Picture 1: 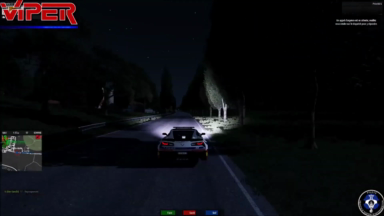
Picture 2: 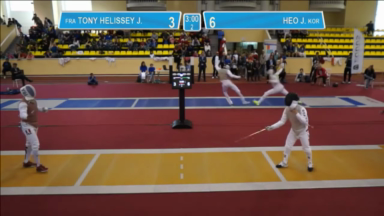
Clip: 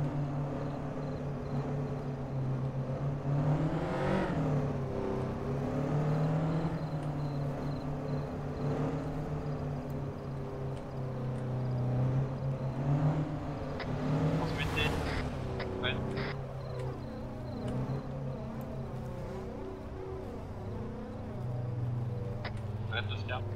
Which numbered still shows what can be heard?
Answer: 1